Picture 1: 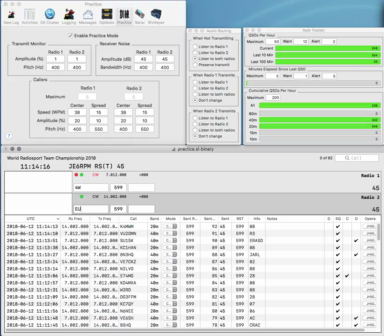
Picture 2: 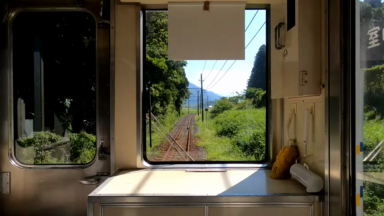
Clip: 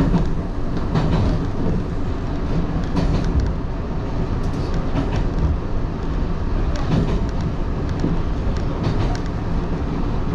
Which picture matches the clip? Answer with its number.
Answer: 2